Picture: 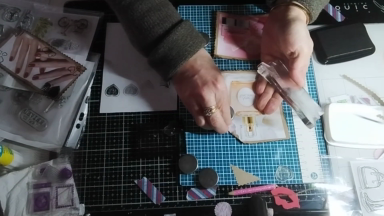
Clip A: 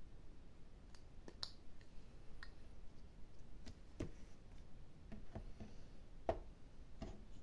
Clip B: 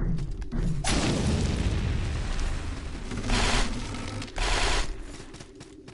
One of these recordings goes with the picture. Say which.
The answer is A